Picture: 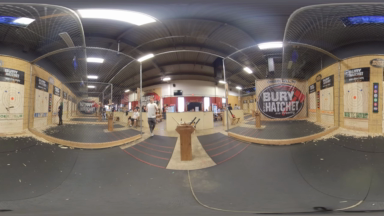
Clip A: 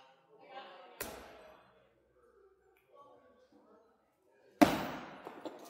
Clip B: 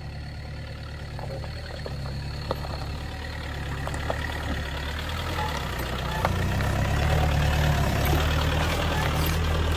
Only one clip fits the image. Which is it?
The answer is A